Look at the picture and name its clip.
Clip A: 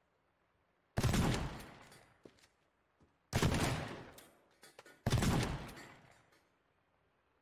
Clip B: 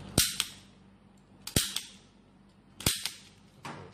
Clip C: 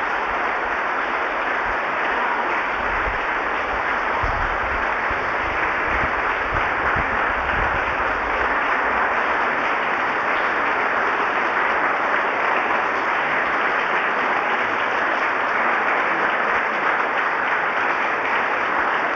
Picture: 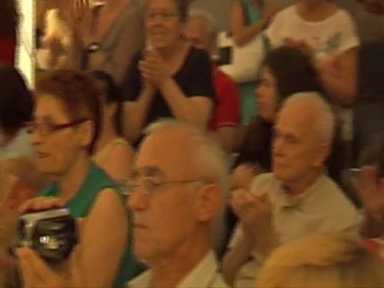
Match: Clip C